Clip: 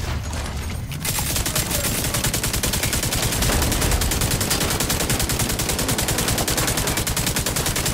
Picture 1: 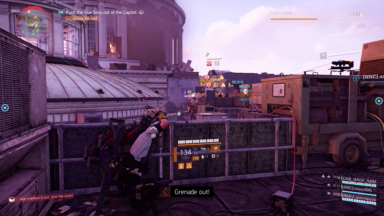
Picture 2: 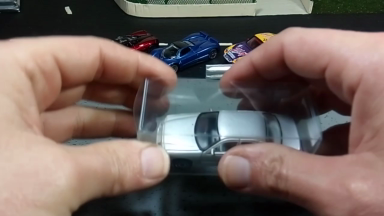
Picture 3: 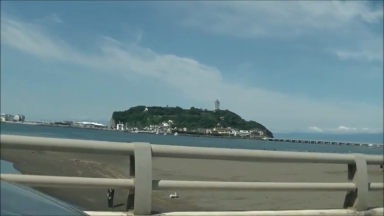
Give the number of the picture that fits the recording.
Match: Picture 1